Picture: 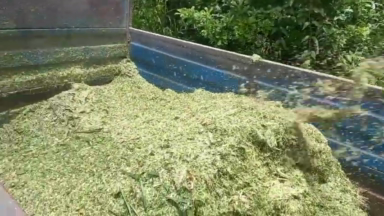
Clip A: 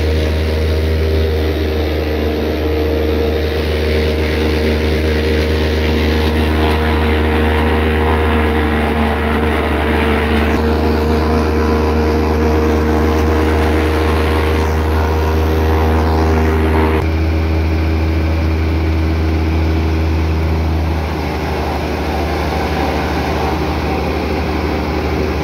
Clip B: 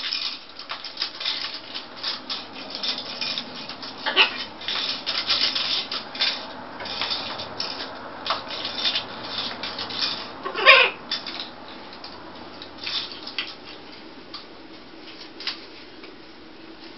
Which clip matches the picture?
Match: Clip A